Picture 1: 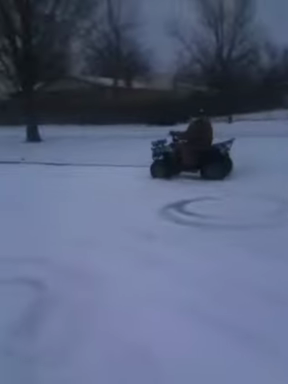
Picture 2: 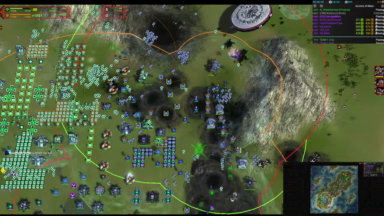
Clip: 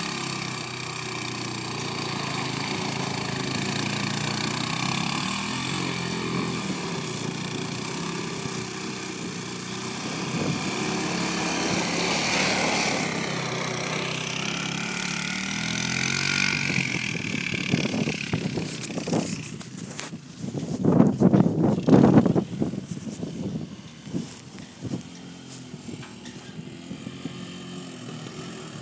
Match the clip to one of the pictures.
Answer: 1